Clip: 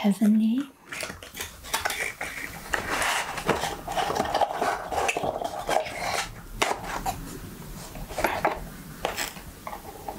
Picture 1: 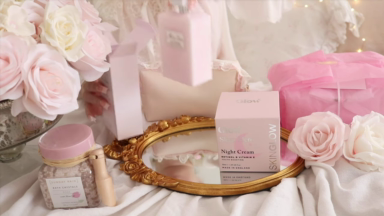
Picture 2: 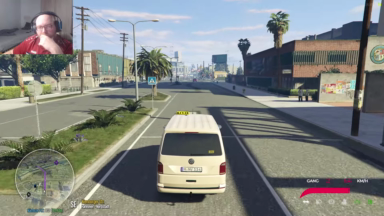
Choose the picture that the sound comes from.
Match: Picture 1